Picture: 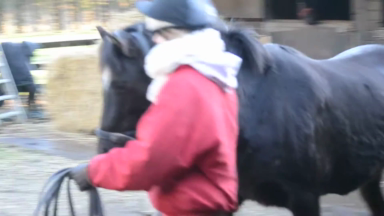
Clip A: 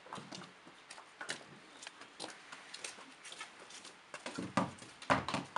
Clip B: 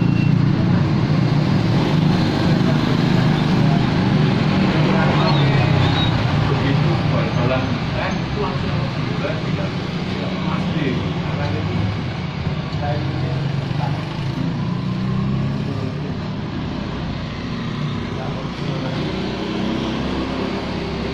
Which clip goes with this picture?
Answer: A